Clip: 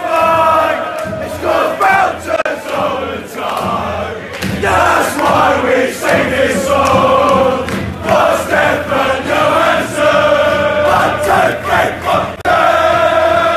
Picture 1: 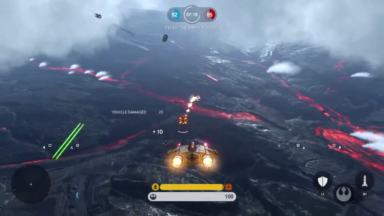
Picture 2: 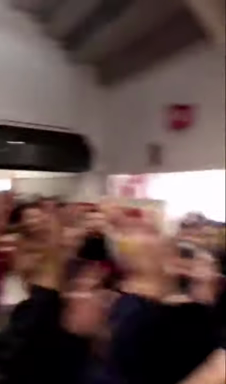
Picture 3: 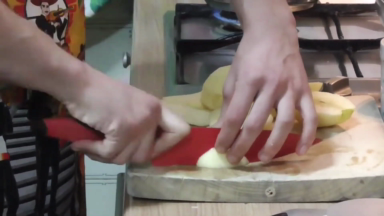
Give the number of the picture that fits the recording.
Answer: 2